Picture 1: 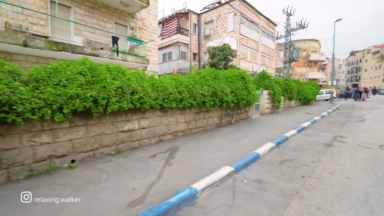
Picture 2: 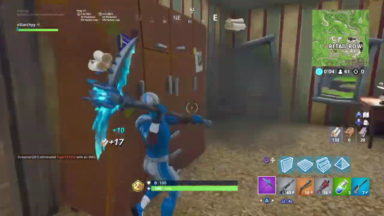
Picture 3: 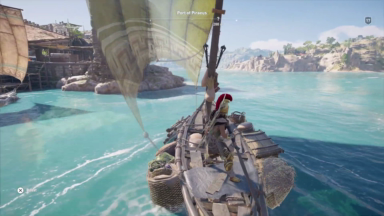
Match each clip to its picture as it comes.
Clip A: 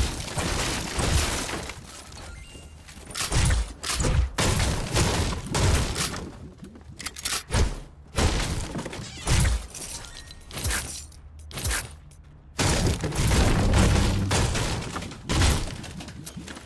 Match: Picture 2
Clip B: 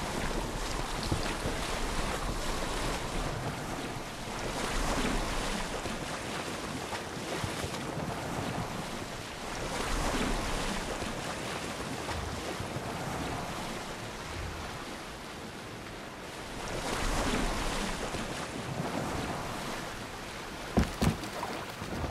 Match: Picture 3